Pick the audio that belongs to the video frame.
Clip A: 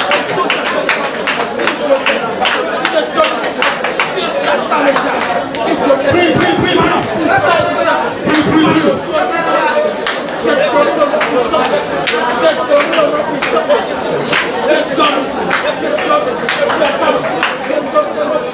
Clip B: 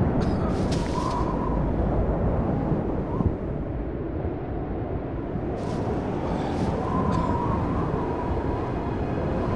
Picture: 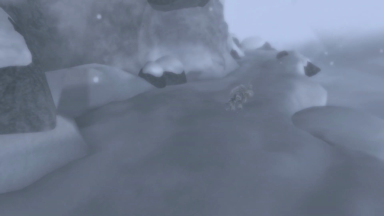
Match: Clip B